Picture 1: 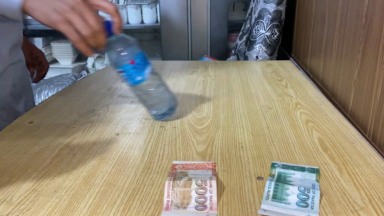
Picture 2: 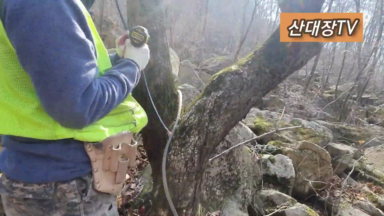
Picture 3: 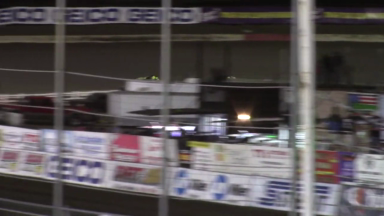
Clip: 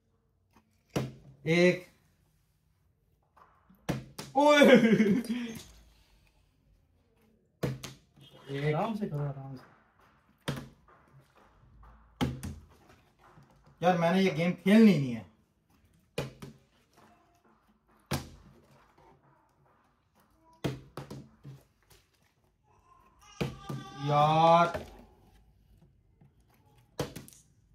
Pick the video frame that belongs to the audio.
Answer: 1